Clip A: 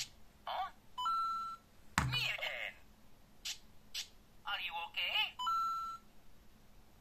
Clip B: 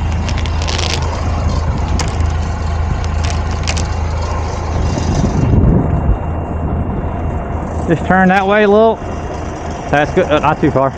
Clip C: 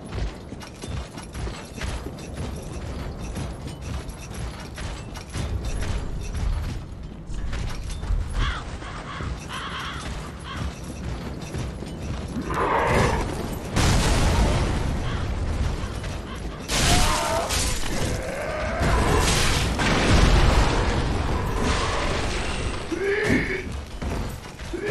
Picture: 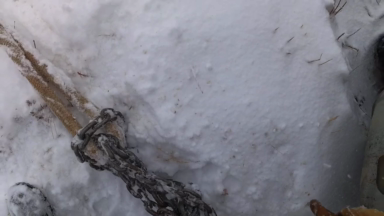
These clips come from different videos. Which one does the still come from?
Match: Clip B